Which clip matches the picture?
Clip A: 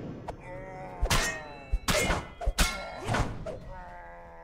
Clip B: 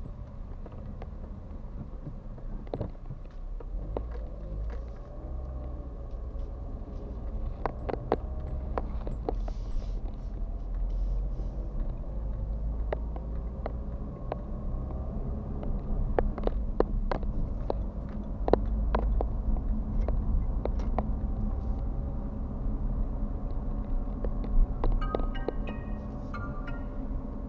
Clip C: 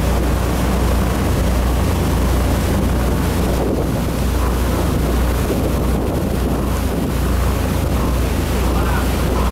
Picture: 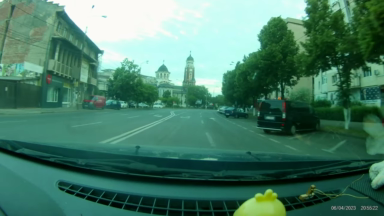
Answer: B